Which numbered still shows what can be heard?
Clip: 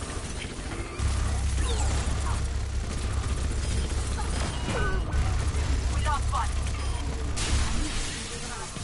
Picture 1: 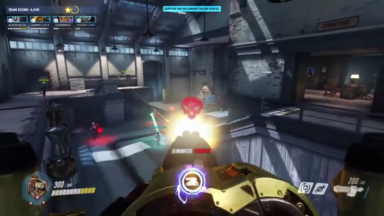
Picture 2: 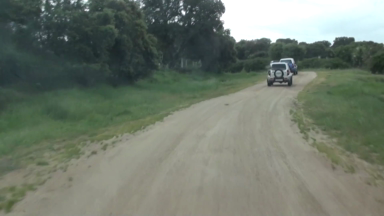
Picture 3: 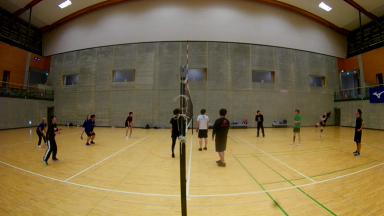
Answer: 1